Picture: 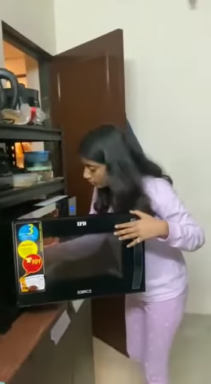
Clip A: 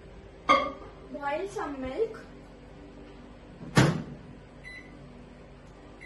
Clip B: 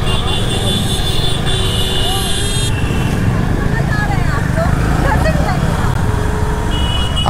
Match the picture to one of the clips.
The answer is A